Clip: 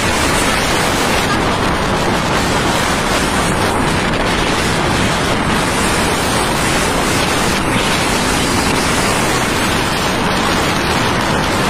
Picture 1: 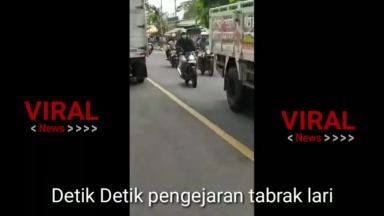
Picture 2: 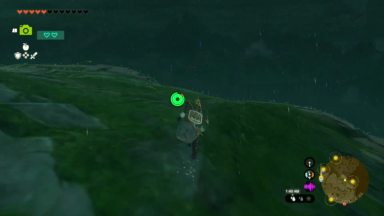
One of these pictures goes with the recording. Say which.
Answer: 1